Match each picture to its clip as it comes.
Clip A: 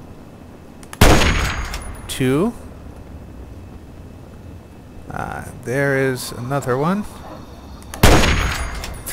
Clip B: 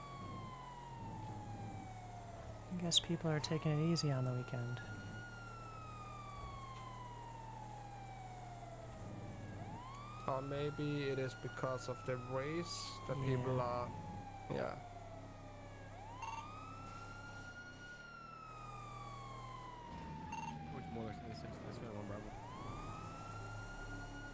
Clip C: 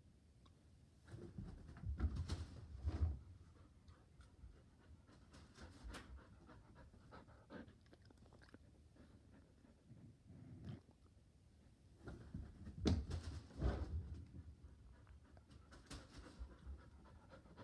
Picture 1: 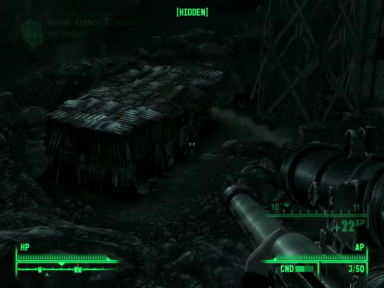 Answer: A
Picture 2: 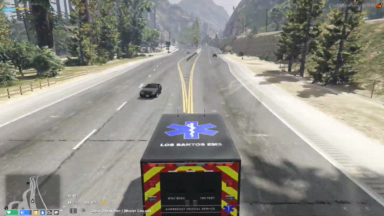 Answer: B